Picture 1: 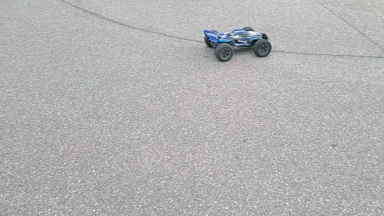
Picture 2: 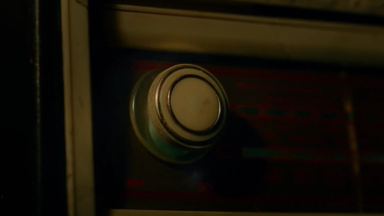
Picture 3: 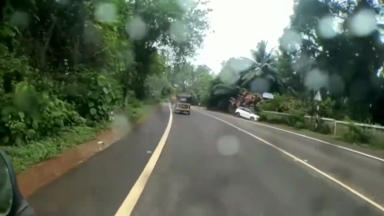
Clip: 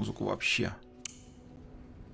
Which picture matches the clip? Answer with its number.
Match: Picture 2